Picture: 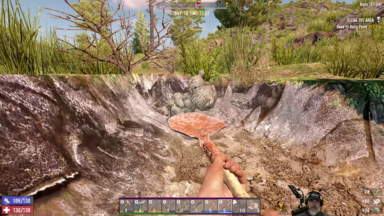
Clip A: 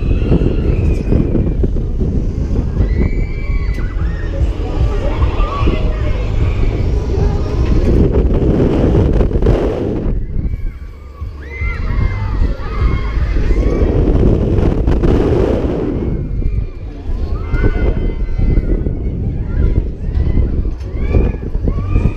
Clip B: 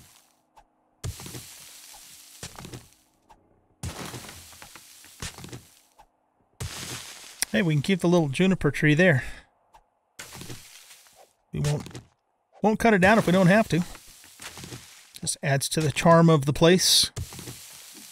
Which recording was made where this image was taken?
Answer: B